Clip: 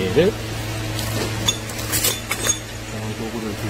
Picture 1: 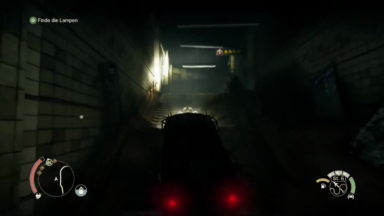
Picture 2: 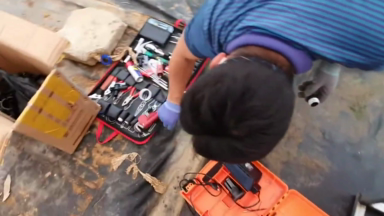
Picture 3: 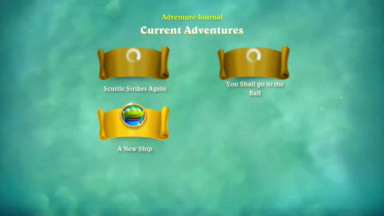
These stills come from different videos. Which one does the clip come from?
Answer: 2